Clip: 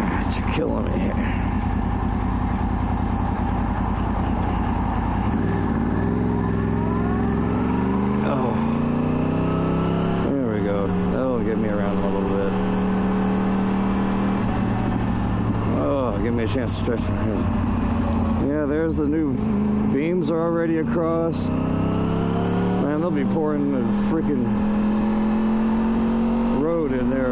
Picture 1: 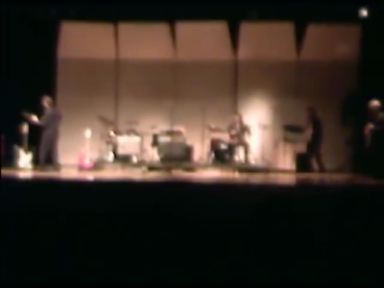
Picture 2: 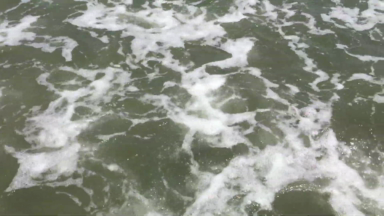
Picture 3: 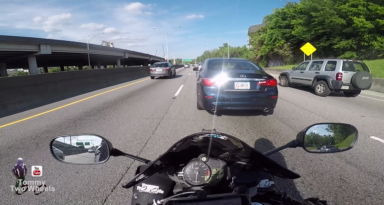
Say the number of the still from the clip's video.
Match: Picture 3